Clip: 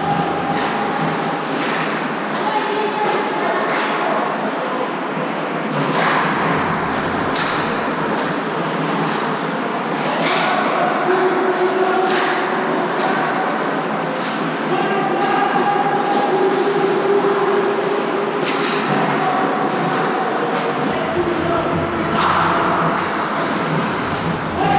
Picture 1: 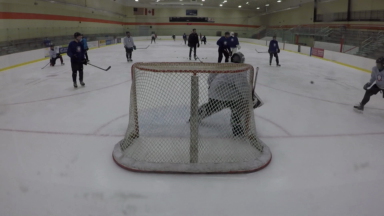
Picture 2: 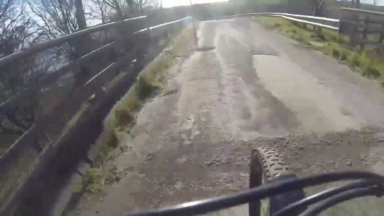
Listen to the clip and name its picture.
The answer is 1